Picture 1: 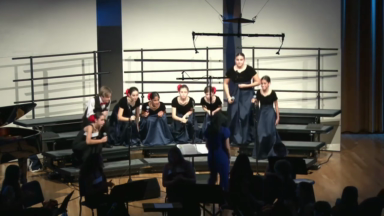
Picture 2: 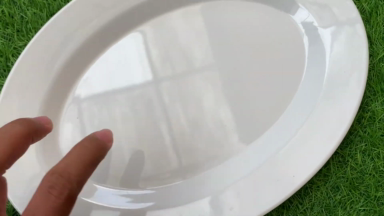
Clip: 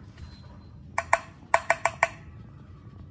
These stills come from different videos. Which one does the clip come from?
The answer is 2